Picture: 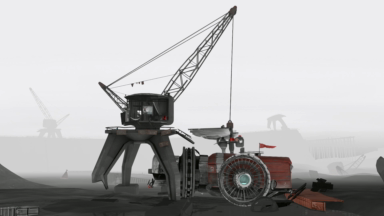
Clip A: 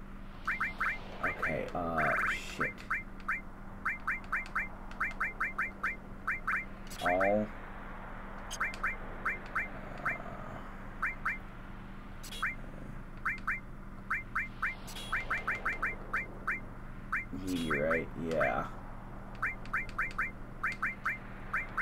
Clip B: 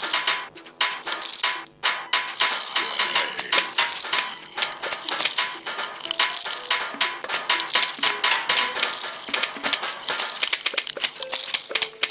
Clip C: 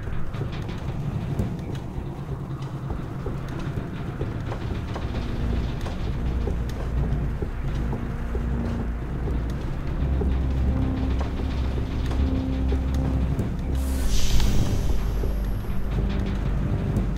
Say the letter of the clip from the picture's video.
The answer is C